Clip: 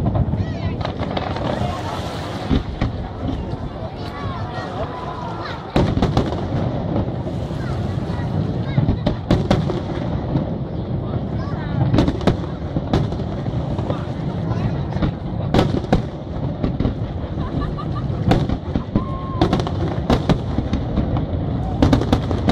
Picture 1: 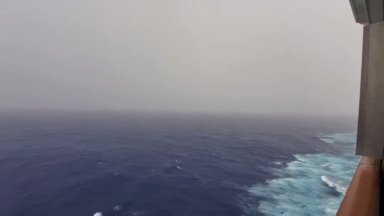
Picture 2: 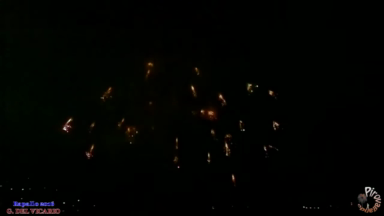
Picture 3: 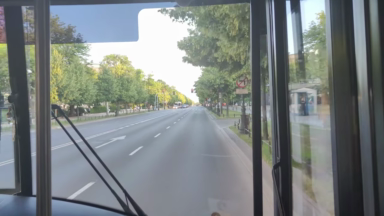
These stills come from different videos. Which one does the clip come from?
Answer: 2